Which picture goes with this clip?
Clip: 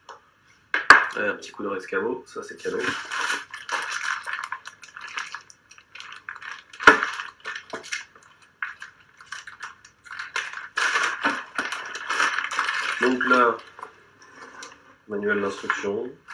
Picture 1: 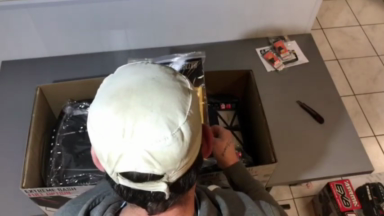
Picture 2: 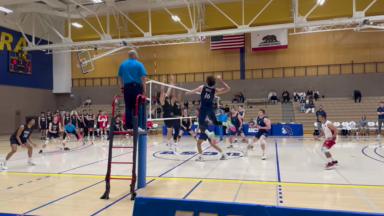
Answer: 1